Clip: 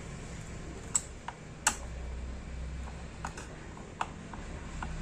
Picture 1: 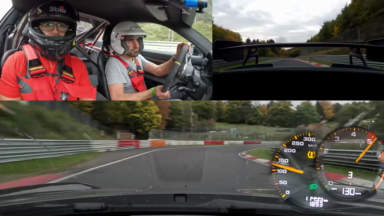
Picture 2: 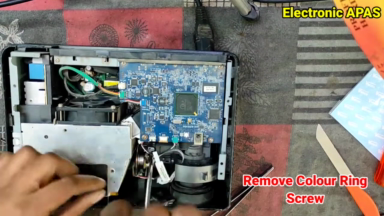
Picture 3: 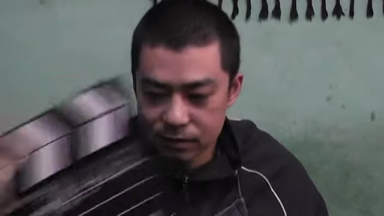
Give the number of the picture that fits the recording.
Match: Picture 2